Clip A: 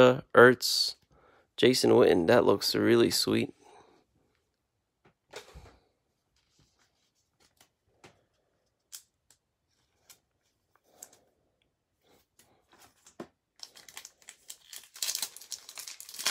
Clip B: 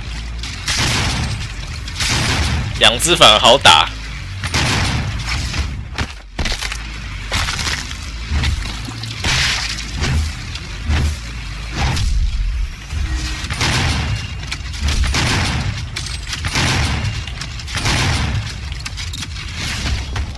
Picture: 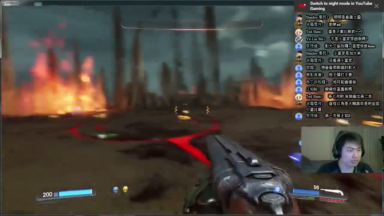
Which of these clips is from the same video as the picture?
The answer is B